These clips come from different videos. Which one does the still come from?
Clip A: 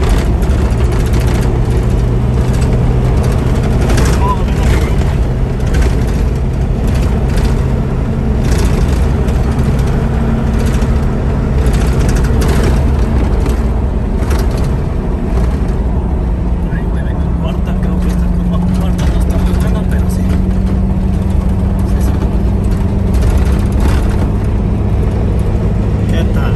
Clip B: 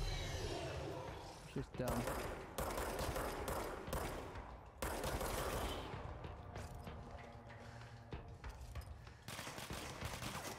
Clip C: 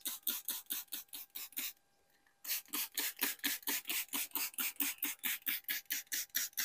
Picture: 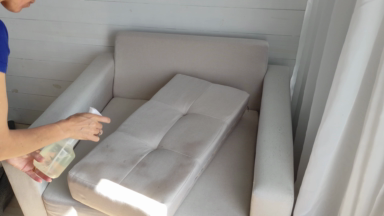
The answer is C